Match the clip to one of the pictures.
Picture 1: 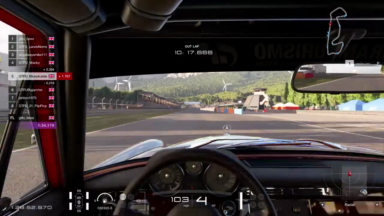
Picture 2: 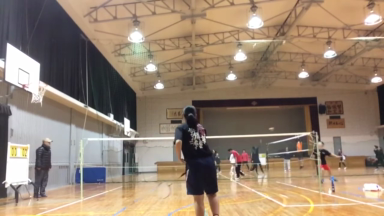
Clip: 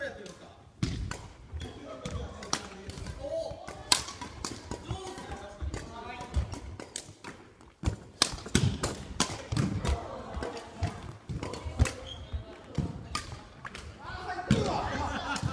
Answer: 2